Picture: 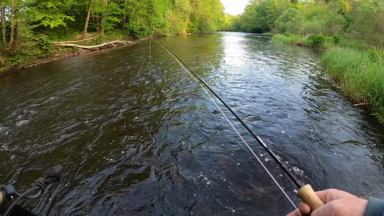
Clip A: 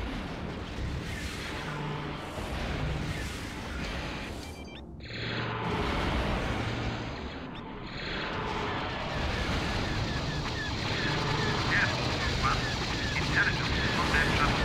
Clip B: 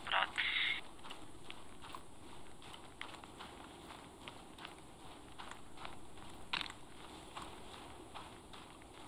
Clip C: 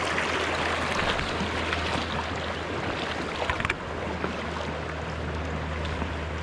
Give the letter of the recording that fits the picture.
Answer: C